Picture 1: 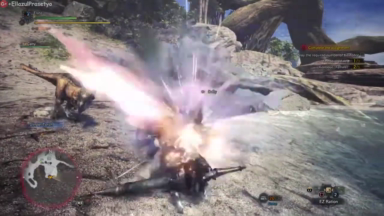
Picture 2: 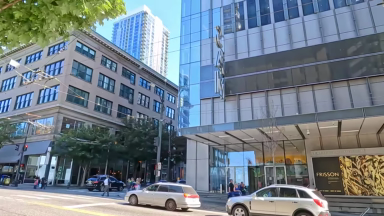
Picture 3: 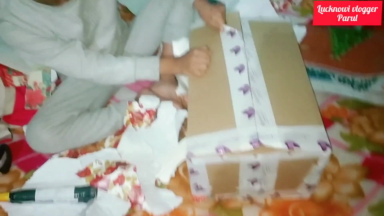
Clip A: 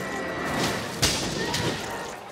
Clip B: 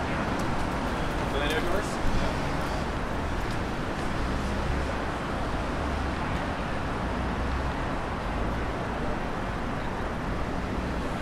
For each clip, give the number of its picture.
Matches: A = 1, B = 2